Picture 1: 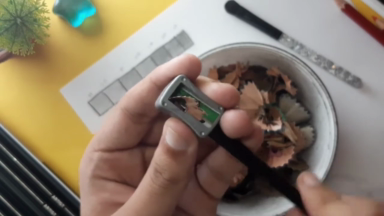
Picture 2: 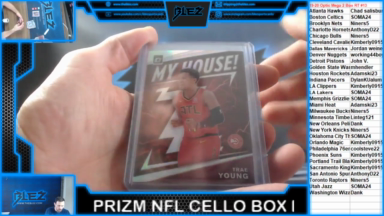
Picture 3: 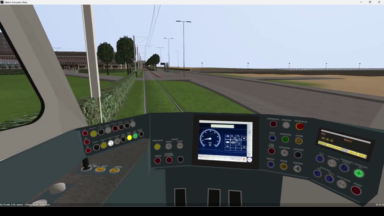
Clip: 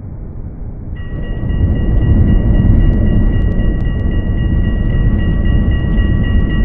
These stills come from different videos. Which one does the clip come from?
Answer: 3